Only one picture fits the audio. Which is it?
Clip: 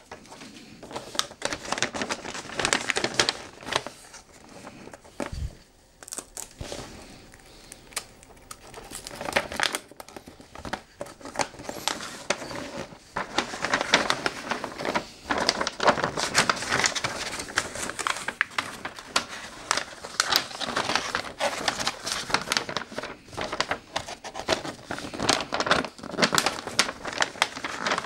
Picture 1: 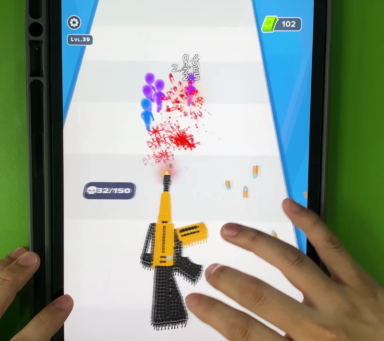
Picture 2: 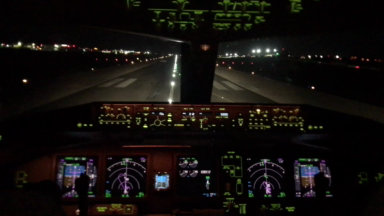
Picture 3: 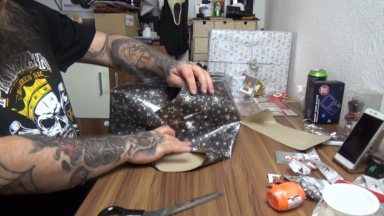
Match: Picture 3